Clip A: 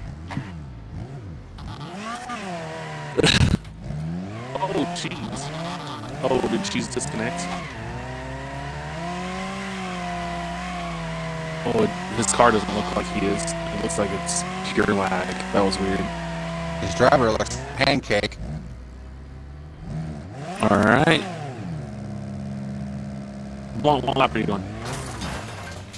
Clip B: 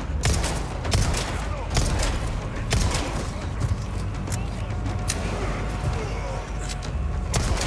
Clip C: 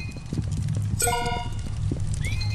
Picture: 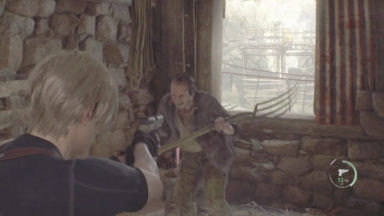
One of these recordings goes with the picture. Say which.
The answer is B